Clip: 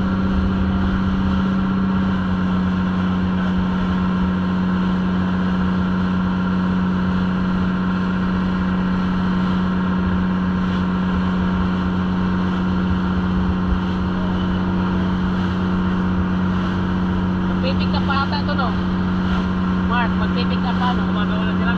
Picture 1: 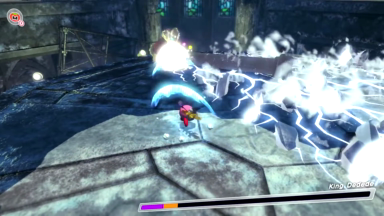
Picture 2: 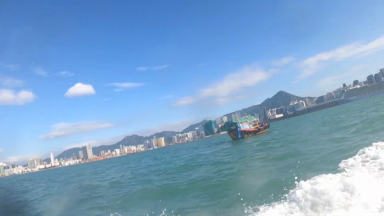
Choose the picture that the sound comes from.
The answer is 2